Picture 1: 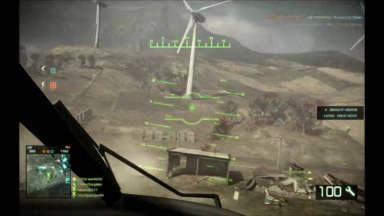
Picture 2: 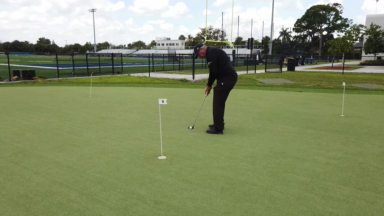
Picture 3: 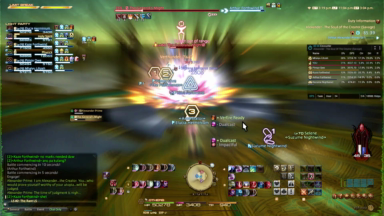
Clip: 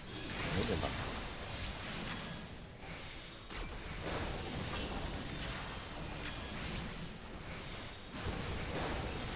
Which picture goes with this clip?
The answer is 3